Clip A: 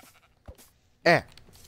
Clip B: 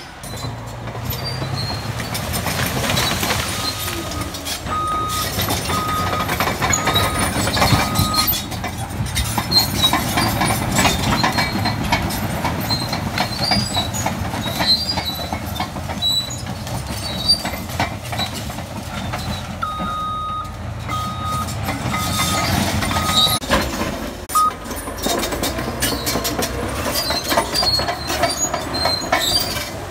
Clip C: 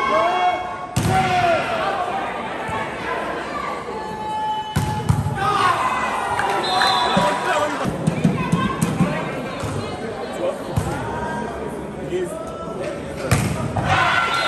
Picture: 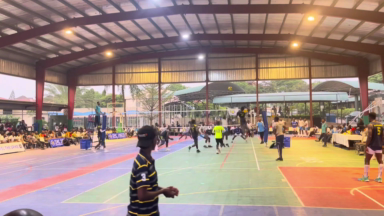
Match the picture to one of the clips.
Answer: C